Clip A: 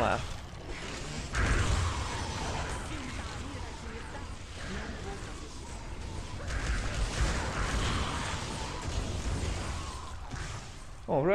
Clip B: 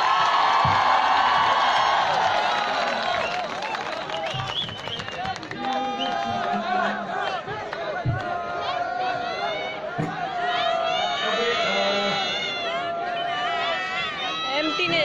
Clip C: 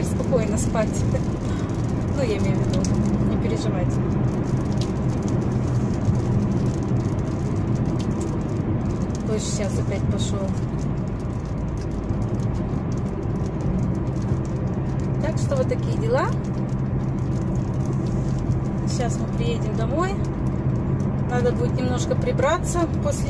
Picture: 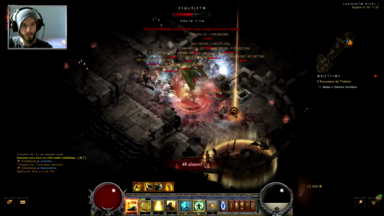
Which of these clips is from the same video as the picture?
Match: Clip A